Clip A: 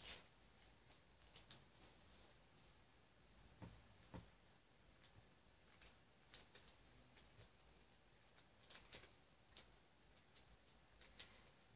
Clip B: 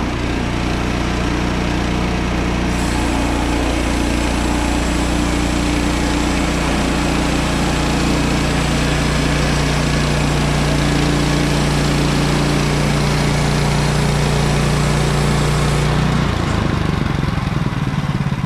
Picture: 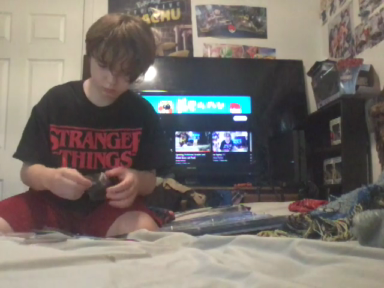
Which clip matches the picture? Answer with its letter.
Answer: A